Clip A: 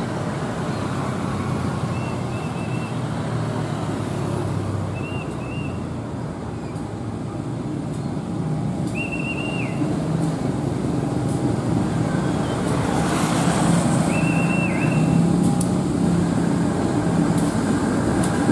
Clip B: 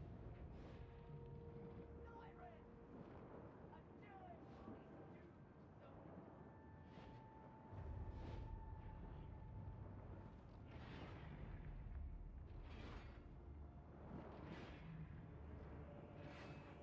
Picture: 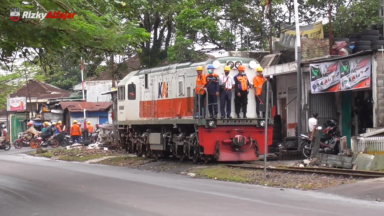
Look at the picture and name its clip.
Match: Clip A